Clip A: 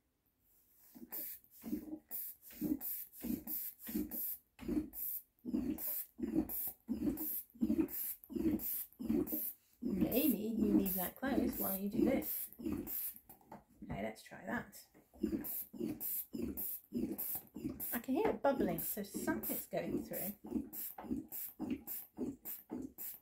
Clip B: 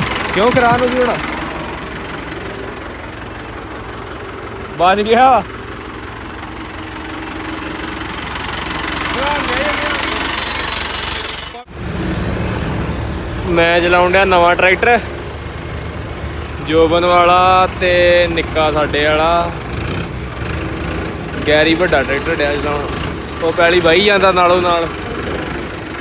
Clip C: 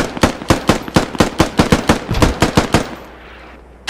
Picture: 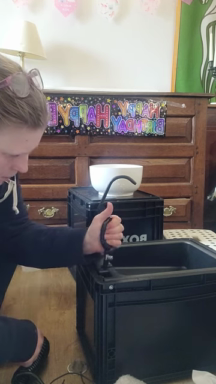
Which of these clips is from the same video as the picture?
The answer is A